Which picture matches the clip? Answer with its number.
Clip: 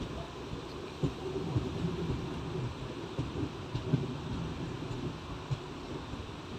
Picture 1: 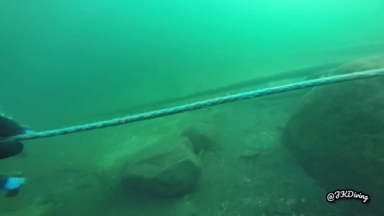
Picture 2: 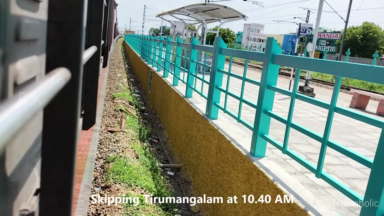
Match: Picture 2